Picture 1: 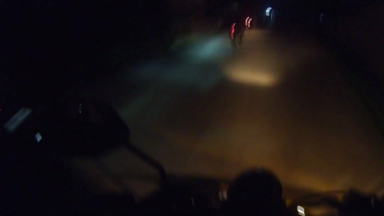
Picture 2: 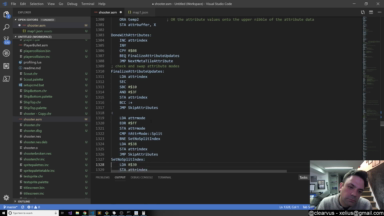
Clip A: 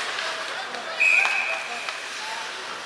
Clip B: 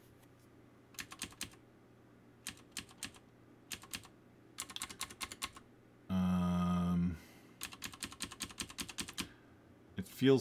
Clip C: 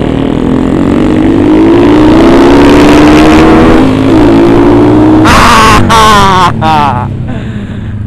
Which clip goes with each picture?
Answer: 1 C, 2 B